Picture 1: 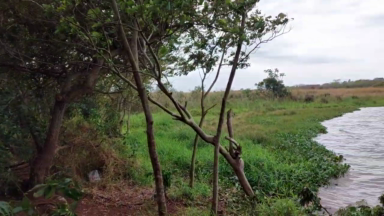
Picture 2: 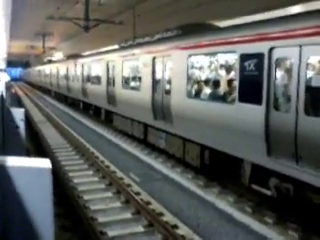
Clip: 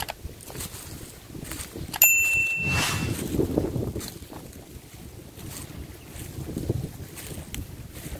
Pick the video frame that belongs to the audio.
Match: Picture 1